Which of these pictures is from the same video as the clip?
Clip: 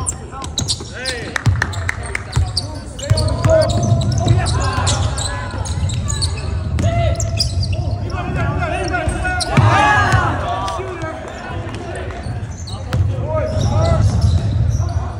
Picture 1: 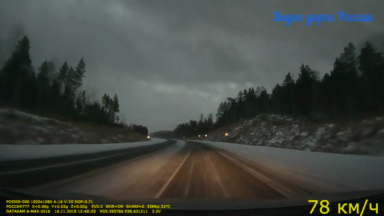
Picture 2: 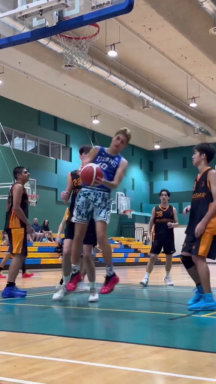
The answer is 2